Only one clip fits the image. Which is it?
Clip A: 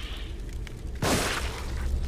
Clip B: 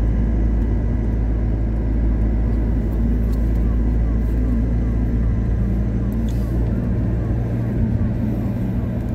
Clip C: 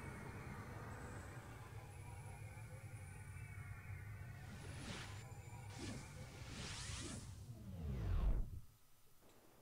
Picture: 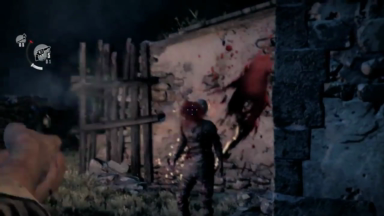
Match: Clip A